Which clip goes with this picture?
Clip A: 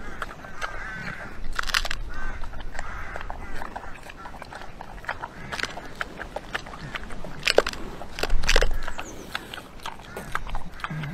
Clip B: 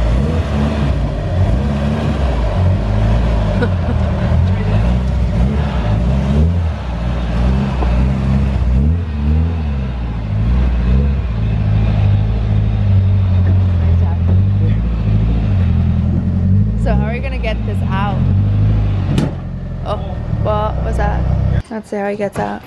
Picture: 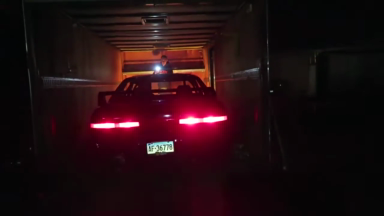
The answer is B